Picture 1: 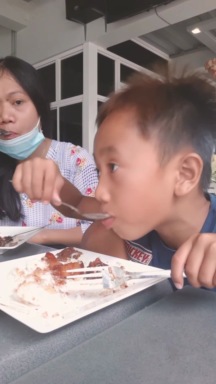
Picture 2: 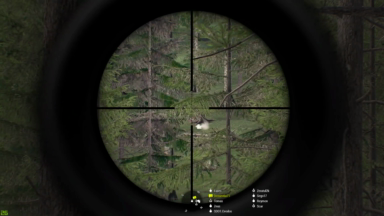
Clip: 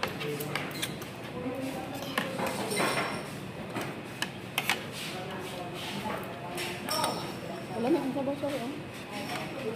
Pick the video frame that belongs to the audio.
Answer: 1